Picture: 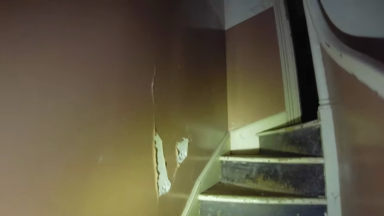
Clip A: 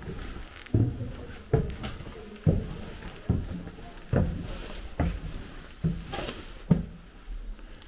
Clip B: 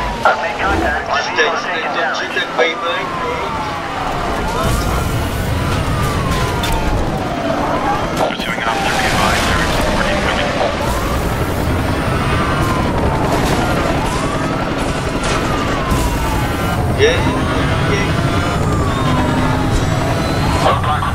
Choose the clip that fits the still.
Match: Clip A